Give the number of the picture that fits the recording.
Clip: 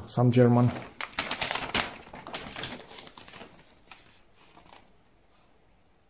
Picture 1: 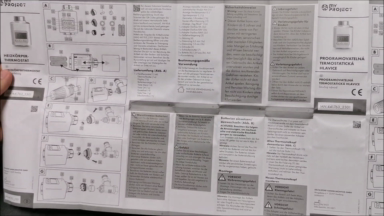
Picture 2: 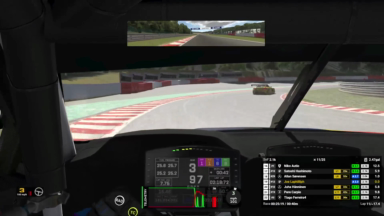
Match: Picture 1